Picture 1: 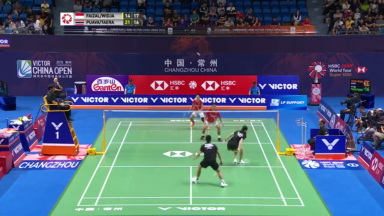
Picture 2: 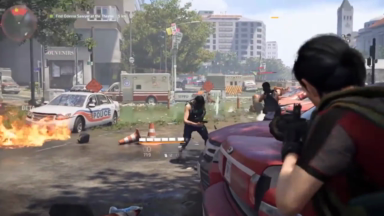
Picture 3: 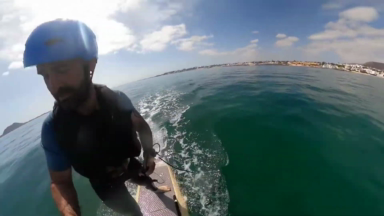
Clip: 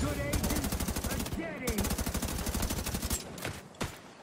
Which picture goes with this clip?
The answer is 2